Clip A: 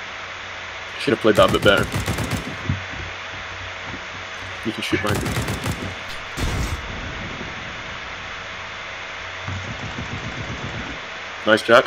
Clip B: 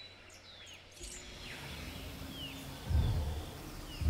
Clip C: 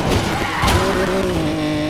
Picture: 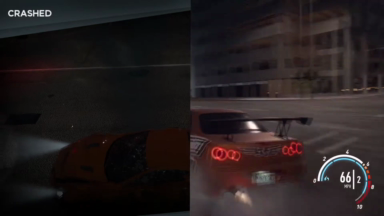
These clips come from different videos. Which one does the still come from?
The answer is C